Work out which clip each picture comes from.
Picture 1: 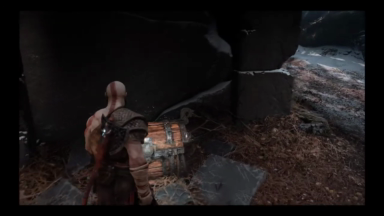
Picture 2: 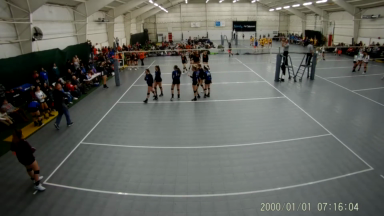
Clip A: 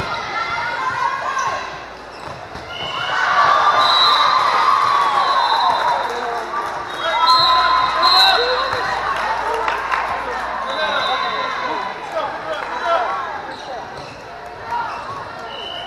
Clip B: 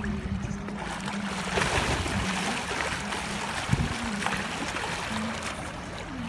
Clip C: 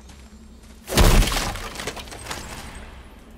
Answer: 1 C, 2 A